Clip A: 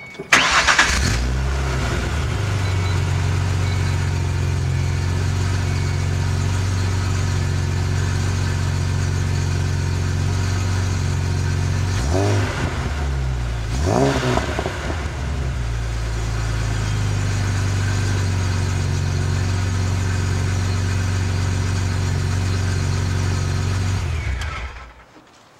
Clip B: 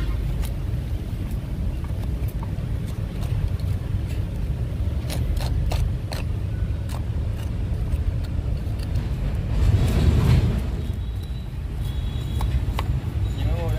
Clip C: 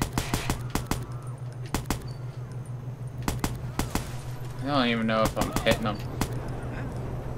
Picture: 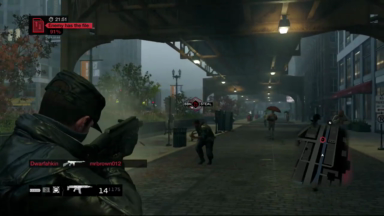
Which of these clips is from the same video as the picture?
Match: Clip C